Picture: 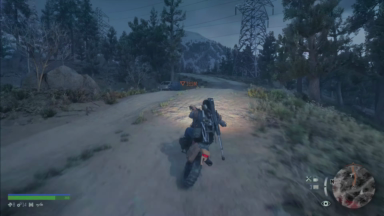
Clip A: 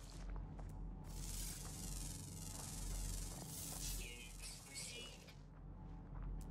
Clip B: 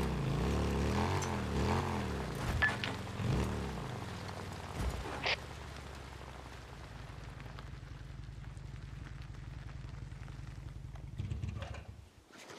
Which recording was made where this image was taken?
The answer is B